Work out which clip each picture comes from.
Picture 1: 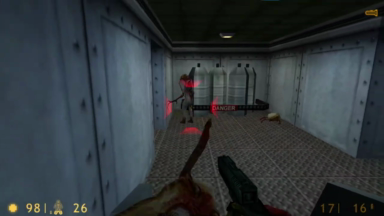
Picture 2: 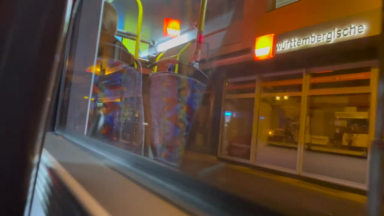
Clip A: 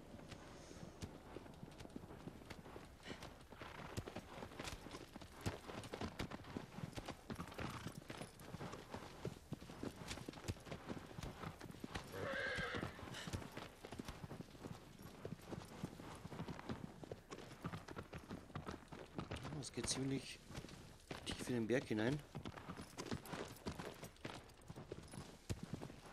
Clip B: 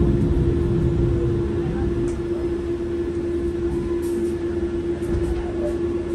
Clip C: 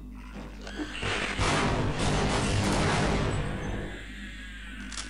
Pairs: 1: C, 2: B